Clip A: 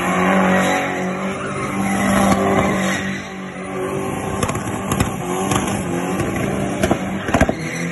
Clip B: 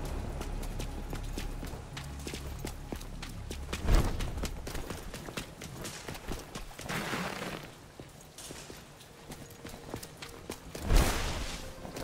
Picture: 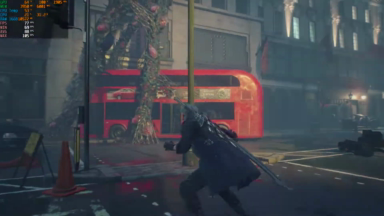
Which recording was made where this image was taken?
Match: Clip B